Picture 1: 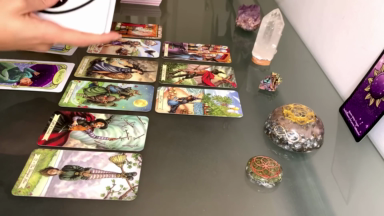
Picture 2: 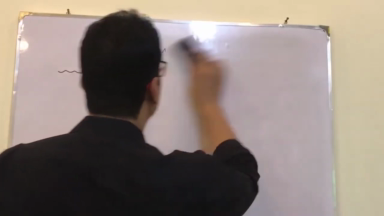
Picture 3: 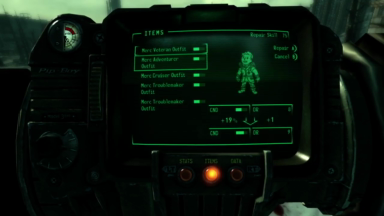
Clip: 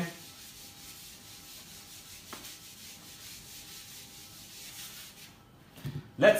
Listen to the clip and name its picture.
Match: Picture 2